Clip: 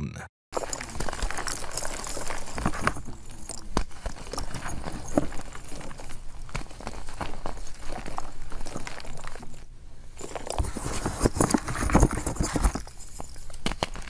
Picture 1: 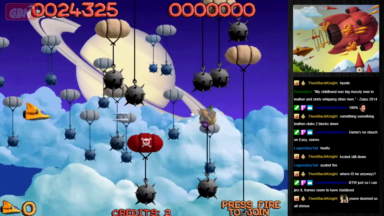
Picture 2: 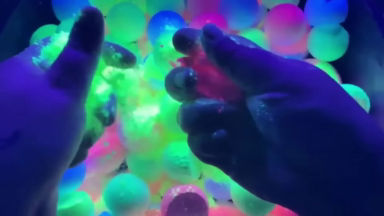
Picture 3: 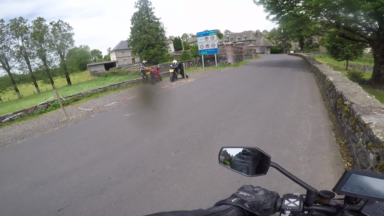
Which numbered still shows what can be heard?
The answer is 2